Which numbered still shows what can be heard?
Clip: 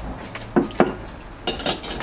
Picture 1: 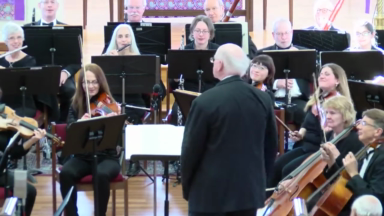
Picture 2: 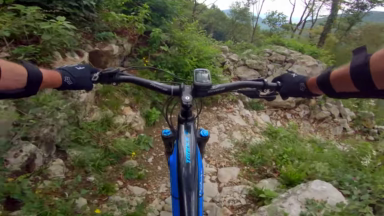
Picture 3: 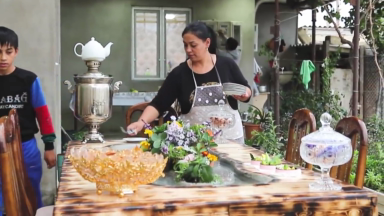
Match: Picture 3